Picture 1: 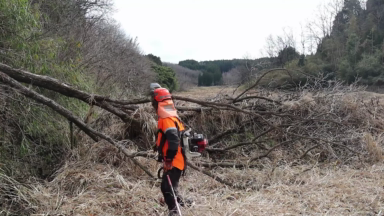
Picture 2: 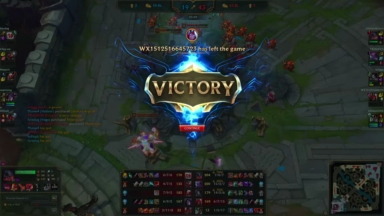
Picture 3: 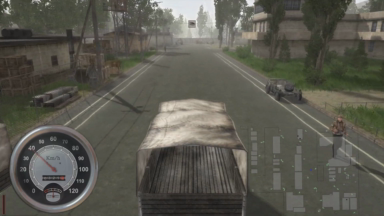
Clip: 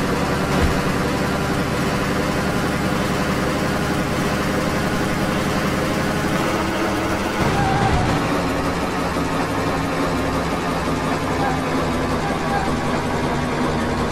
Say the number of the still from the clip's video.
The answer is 3